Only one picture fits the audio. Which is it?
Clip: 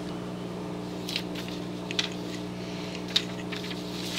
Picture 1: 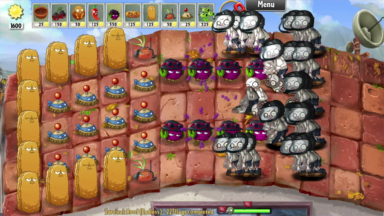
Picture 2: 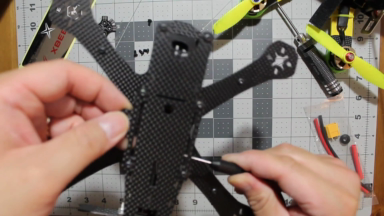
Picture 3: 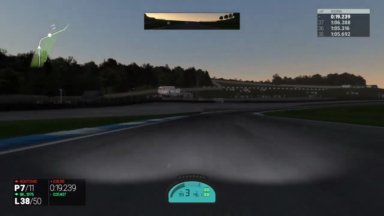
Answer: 2